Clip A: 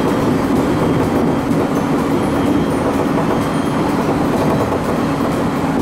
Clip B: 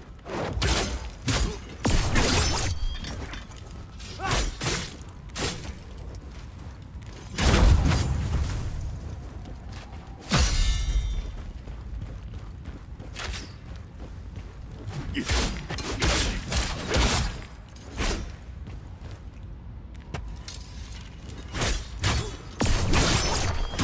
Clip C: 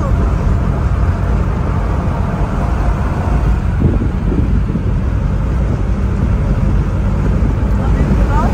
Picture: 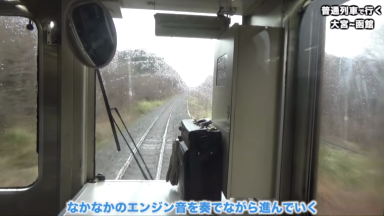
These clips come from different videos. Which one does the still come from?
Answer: A